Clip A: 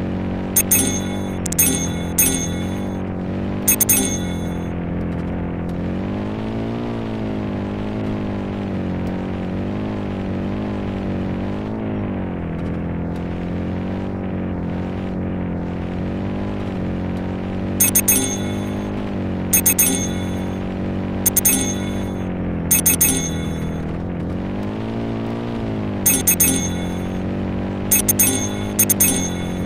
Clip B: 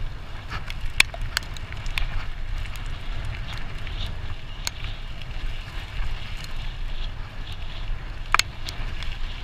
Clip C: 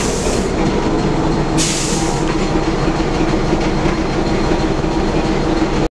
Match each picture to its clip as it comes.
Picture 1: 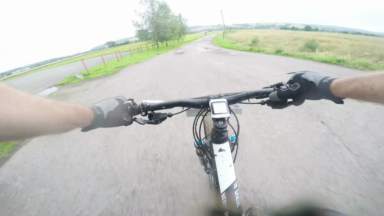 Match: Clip B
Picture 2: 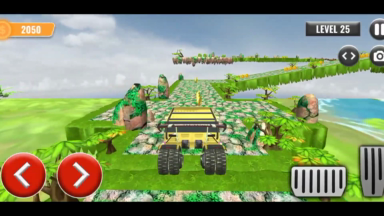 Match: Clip A